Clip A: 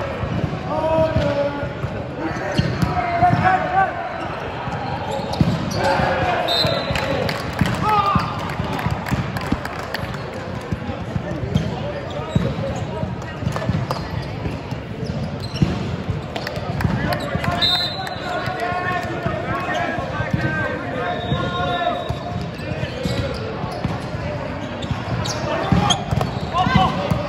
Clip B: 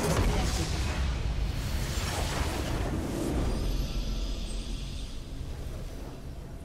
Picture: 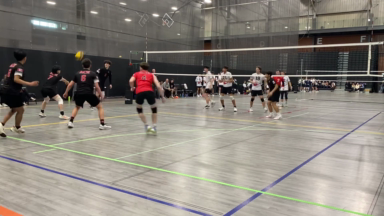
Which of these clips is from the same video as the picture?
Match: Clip A